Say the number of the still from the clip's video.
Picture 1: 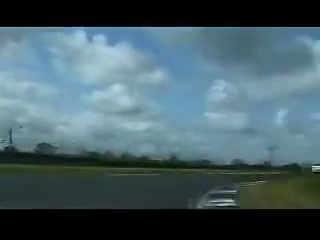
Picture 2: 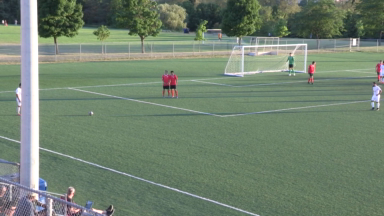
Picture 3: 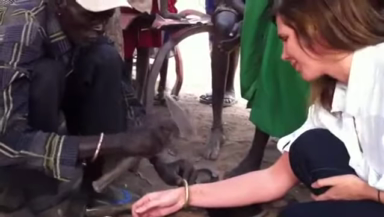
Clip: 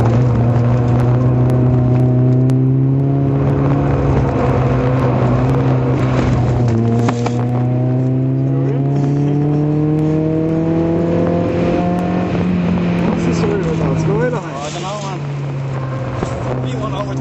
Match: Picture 1